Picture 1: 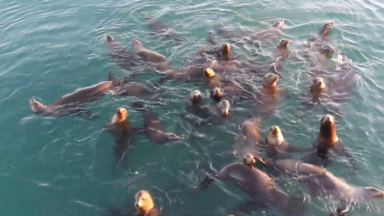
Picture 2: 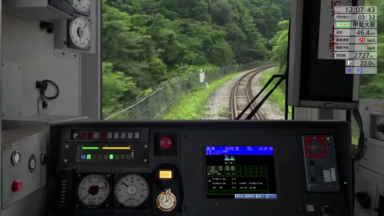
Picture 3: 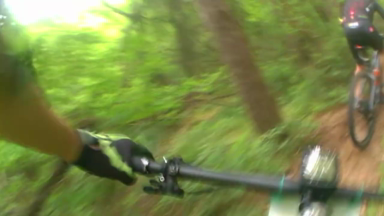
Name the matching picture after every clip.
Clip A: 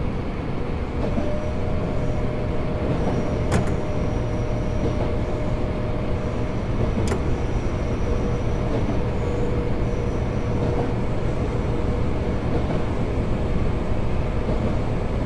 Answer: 2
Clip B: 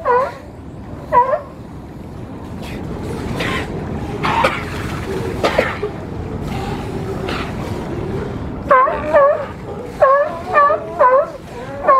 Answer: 1